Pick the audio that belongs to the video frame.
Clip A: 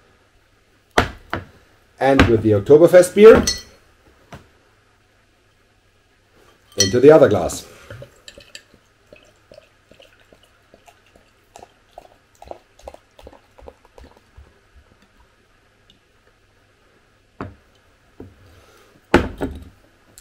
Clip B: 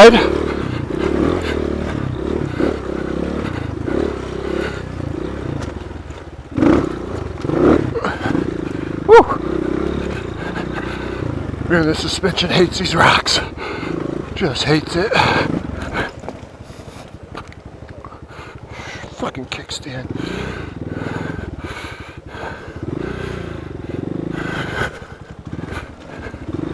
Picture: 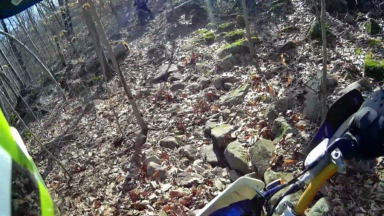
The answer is B